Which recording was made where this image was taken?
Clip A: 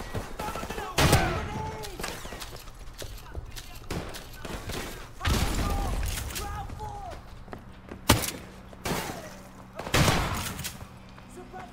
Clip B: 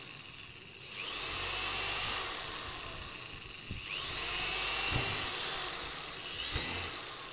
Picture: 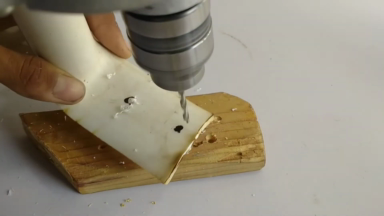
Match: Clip B